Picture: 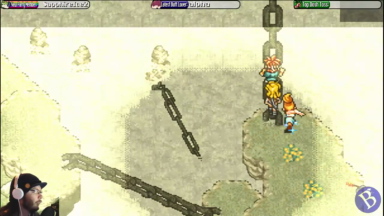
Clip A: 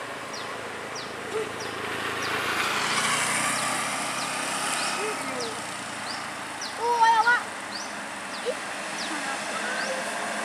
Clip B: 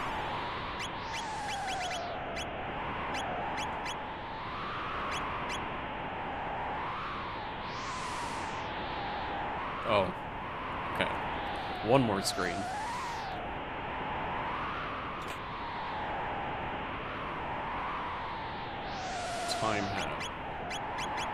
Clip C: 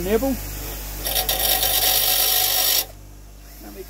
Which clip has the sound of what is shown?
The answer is B